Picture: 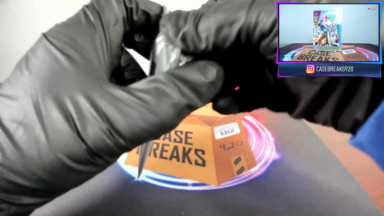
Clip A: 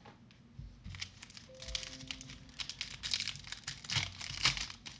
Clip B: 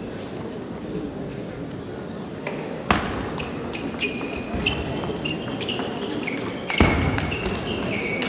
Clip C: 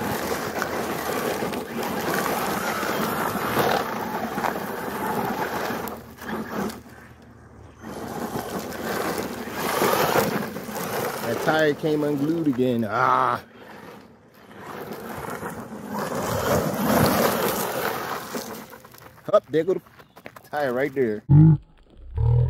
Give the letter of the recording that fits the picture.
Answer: A